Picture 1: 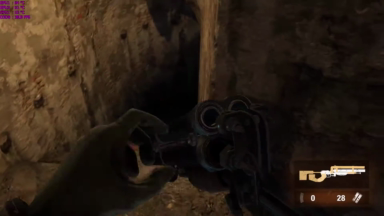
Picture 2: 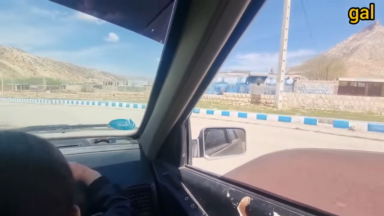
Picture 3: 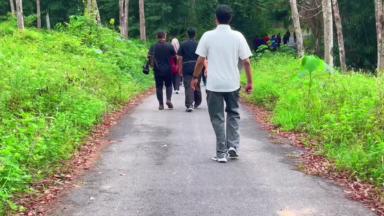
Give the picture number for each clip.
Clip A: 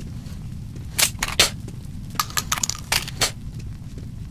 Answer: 1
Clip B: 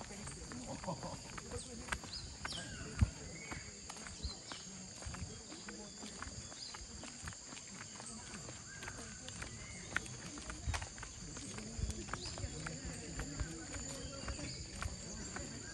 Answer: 3